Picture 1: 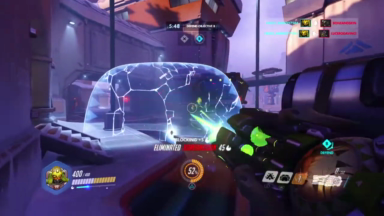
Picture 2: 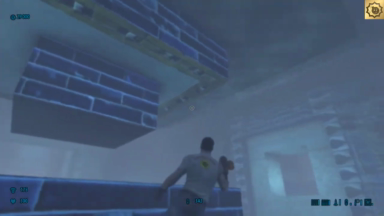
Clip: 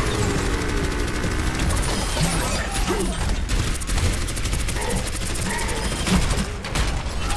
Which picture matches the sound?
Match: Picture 1